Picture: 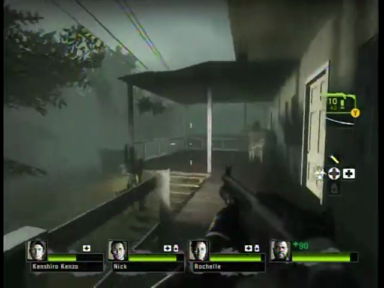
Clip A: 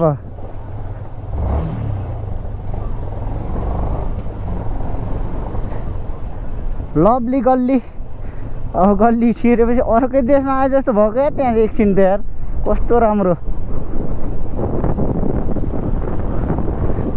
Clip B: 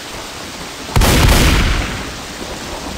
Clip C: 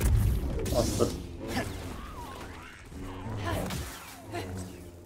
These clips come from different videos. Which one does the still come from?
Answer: B